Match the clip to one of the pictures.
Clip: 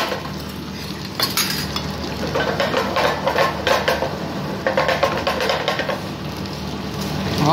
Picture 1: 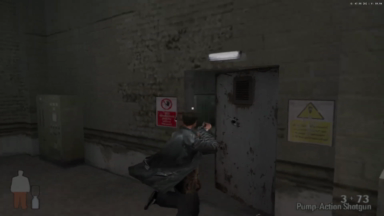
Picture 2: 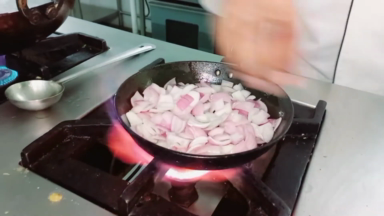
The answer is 2